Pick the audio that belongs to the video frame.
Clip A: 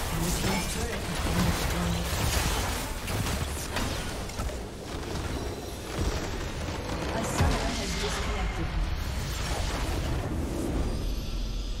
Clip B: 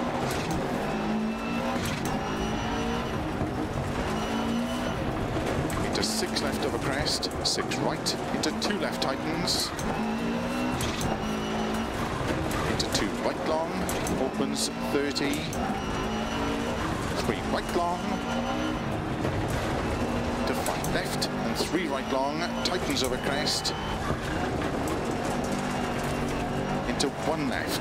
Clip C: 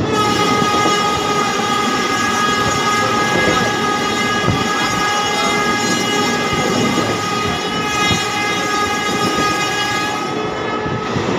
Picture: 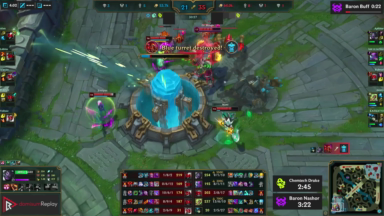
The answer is A